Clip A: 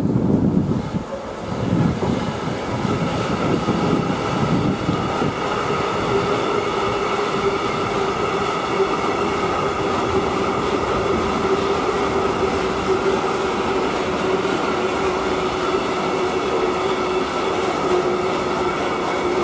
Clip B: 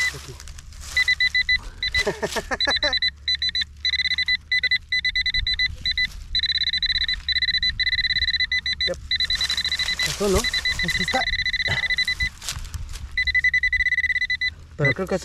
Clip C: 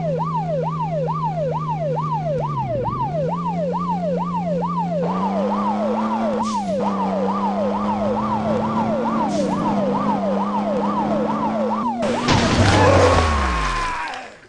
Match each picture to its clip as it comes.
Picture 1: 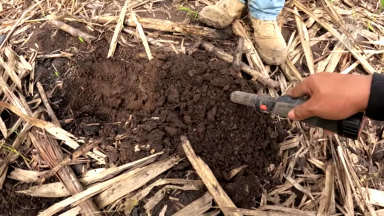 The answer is B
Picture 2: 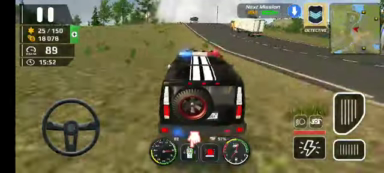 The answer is C